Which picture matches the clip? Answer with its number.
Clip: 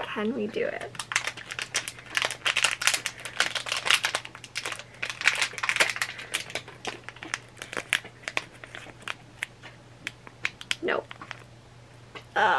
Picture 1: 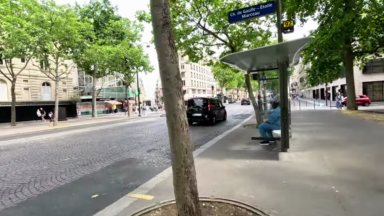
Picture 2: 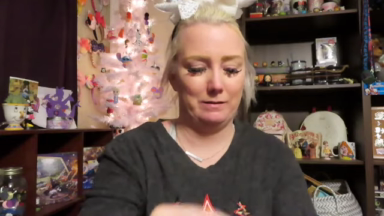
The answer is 2